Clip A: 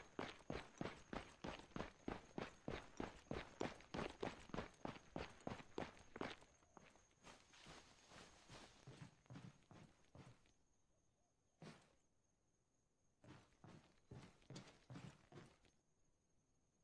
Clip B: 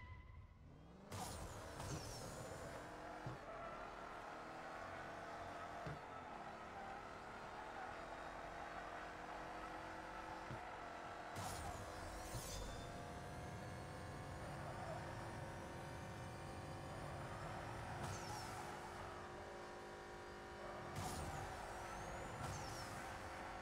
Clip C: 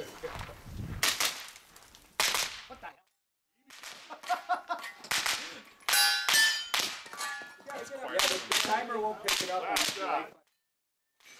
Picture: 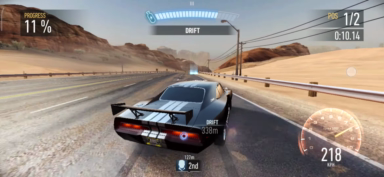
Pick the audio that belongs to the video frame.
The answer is B